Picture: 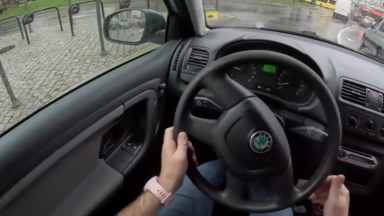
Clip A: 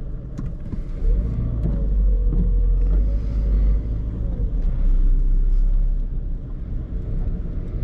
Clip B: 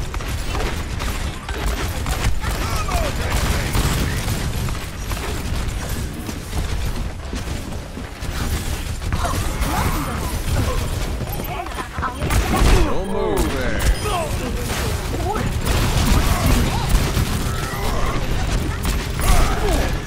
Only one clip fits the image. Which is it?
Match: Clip A